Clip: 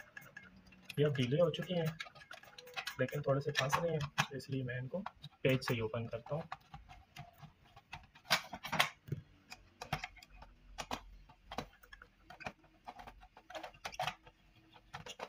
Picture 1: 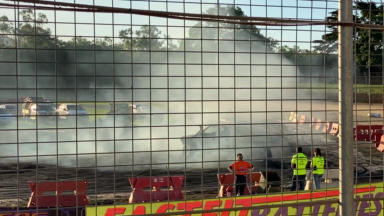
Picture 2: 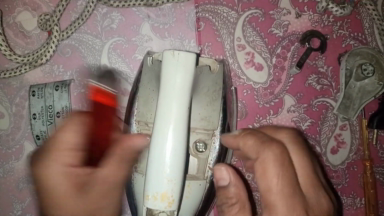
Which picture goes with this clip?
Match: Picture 2